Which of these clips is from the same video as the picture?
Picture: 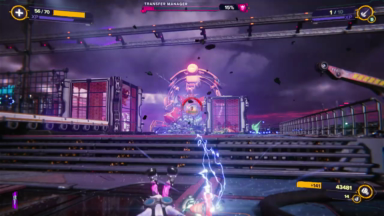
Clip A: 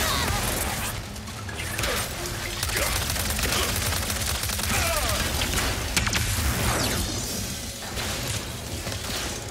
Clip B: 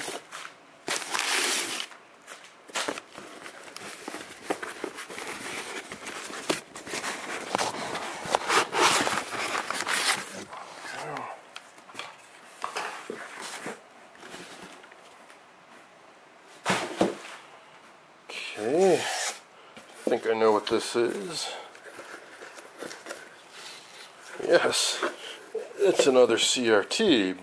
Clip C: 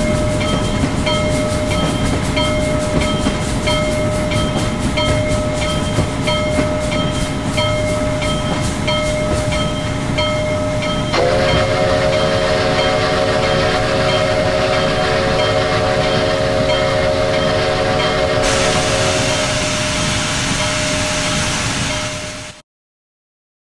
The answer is A